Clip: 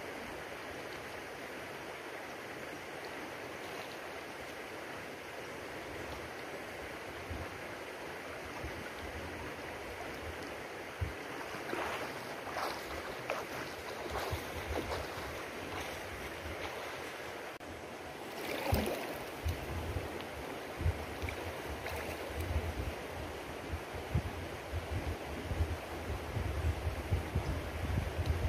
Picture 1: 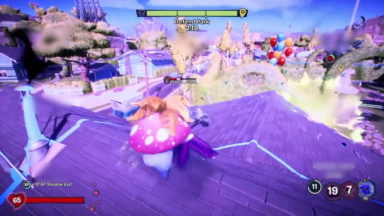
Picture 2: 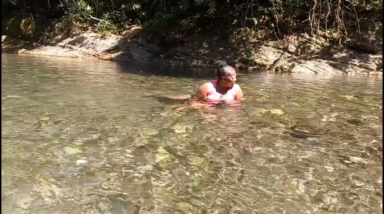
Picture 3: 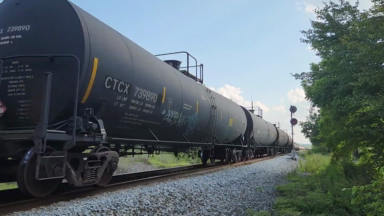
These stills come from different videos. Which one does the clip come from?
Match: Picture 2